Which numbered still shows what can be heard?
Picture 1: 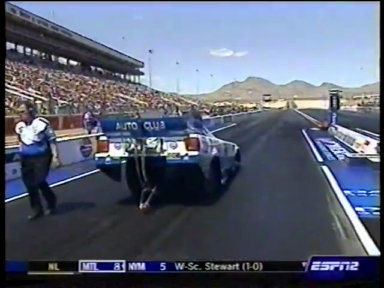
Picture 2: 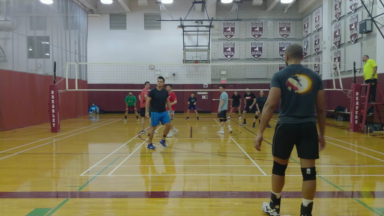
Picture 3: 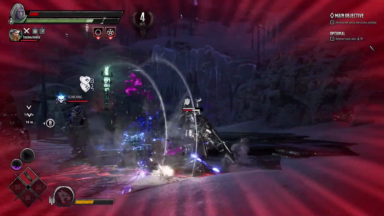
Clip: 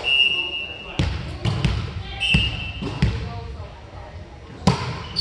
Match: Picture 2